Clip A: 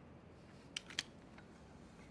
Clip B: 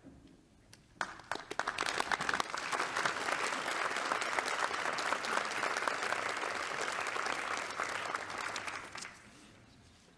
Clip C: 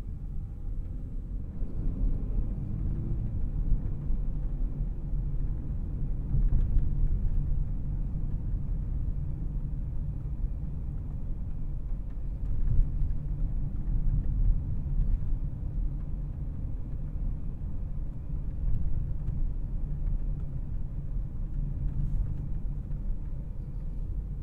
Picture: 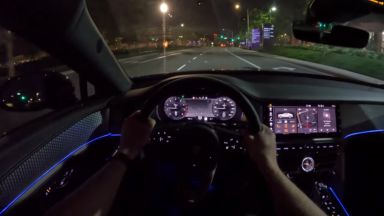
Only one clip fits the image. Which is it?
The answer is C